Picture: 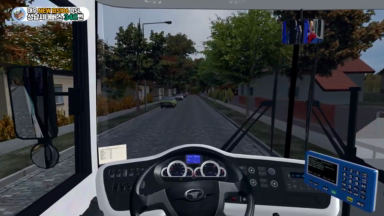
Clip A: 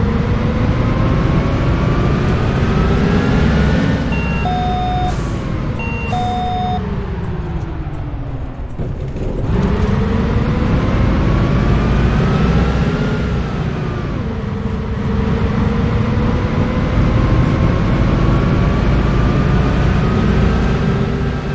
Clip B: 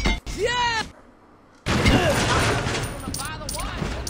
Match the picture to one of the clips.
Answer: A